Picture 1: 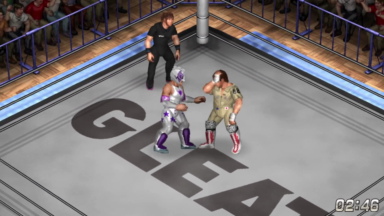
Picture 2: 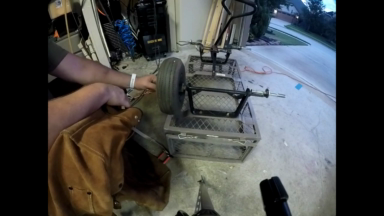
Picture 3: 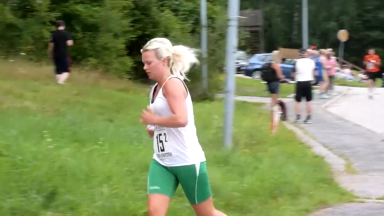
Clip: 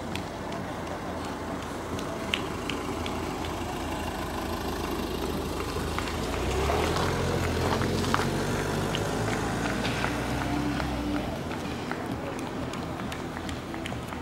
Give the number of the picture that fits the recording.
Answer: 3